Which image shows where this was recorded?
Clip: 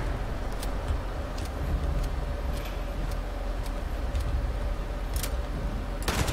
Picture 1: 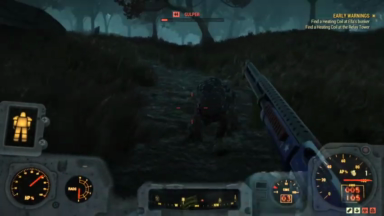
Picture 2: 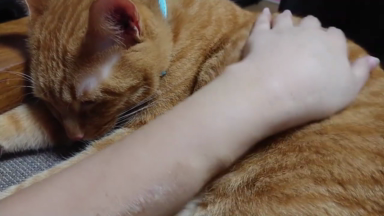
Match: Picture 1